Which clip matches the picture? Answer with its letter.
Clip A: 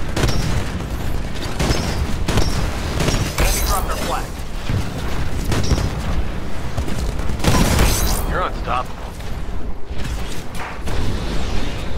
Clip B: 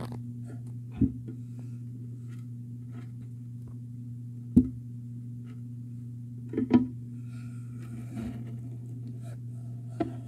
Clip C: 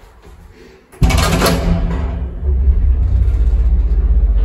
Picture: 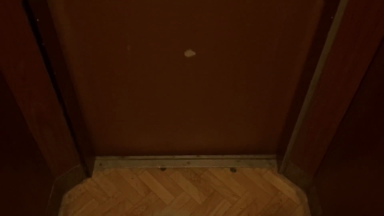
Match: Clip C